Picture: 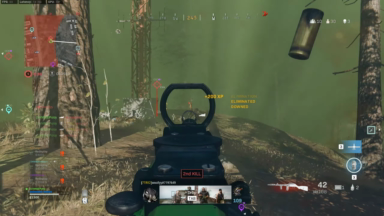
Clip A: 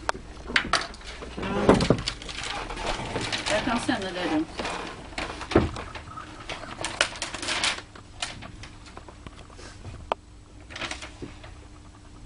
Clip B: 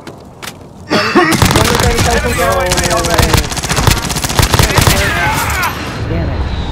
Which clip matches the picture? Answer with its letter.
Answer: B